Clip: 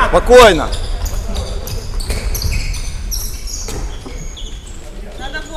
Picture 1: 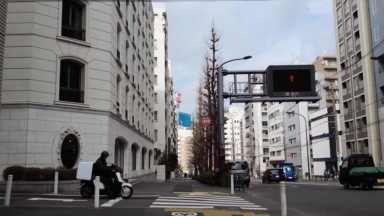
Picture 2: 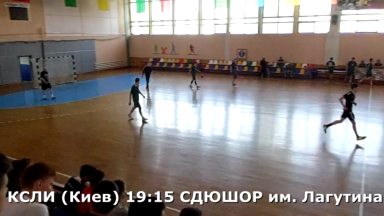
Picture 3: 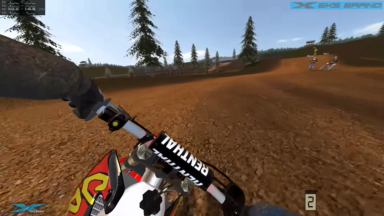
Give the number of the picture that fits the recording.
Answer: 2